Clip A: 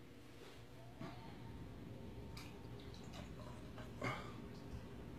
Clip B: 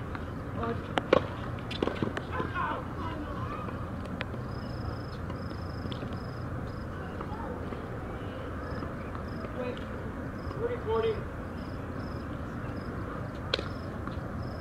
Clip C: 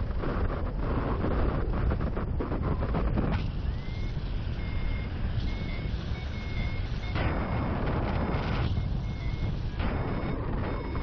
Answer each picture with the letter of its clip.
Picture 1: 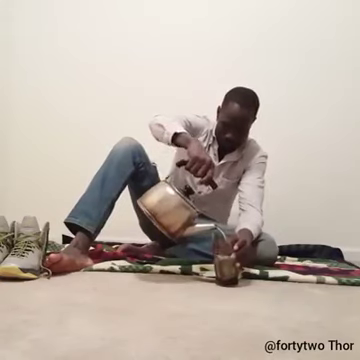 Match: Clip A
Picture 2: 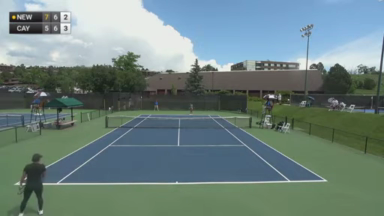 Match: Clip B